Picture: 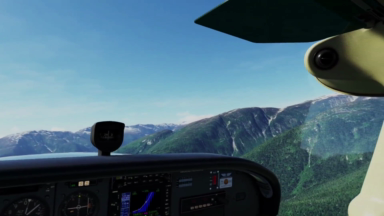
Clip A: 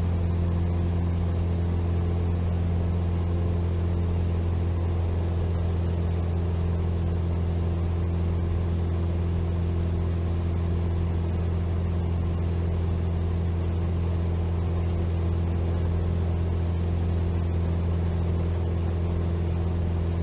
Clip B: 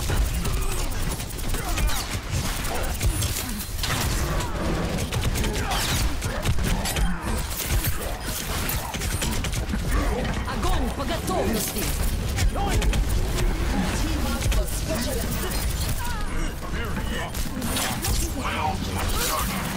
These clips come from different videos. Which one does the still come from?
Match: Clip A